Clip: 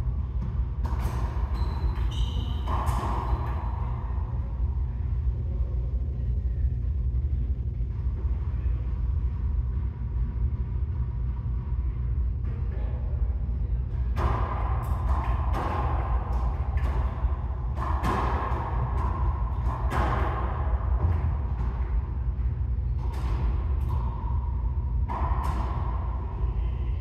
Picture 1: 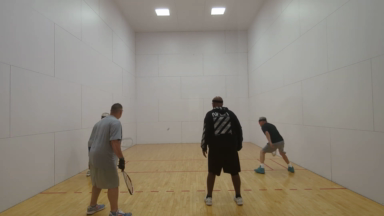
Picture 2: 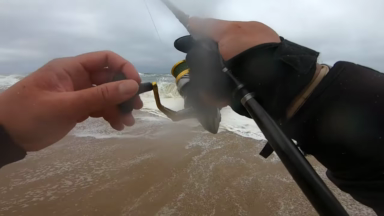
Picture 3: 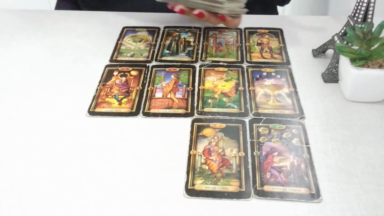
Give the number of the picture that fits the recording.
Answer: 1